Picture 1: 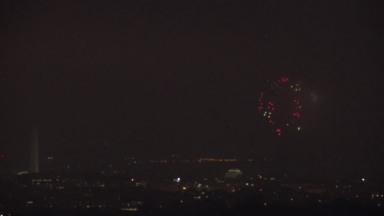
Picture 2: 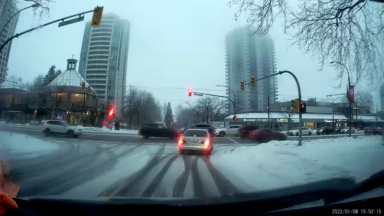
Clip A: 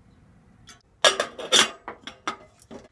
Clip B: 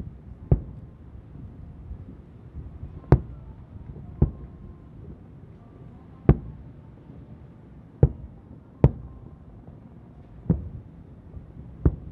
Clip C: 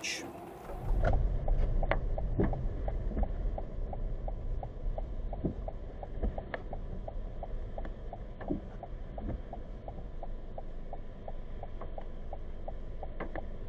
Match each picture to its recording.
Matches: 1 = B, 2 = C